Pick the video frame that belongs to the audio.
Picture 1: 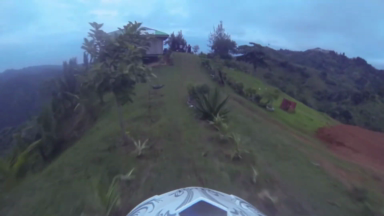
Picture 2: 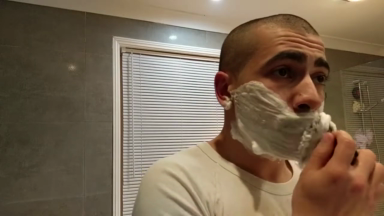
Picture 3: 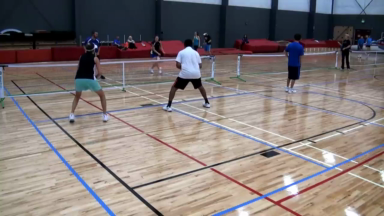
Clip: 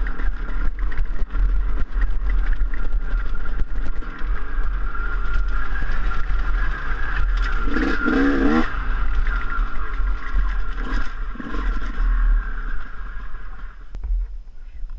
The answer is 1